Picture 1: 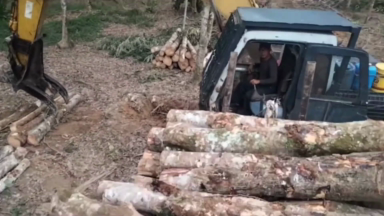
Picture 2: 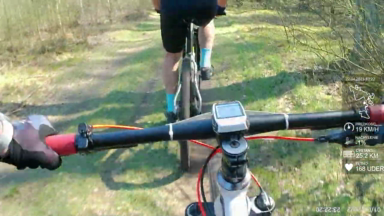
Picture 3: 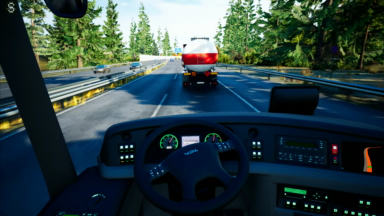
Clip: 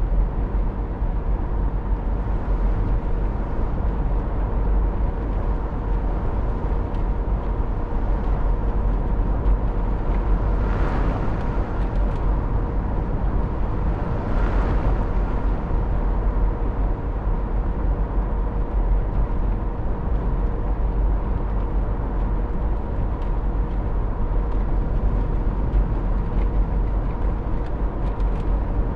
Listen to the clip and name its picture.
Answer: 3